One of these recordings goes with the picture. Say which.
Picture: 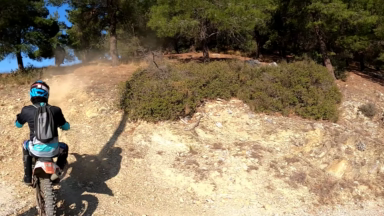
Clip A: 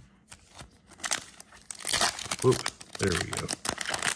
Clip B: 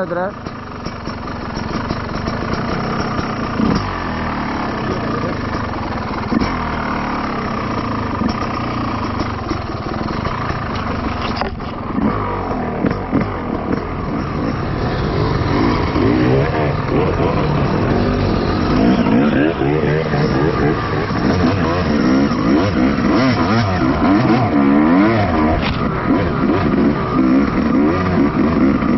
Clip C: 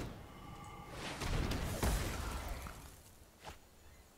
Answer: B